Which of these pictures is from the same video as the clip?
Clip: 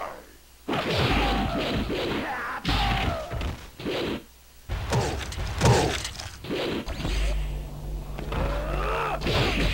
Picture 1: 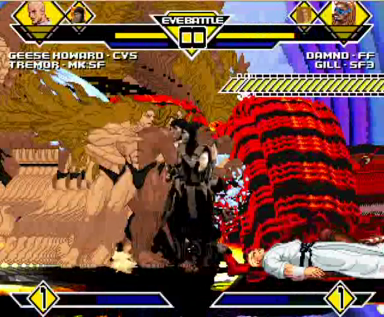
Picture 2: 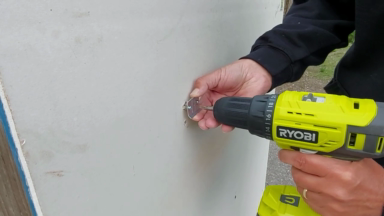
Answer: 1